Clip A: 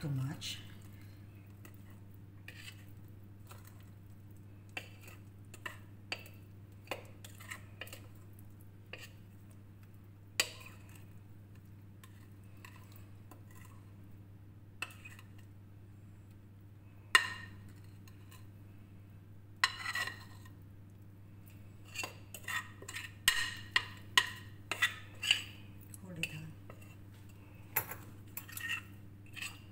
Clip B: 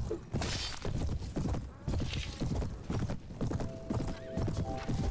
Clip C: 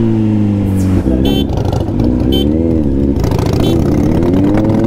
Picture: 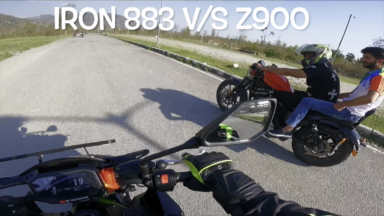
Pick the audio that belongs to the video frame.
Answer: C